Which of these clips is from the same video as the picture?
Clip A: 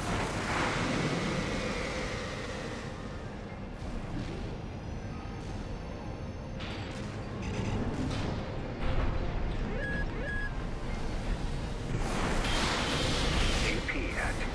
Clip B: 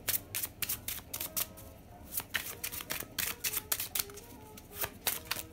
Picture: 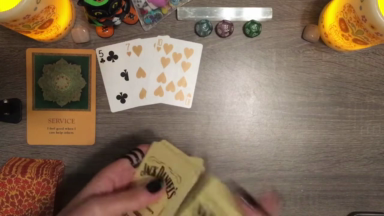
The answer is B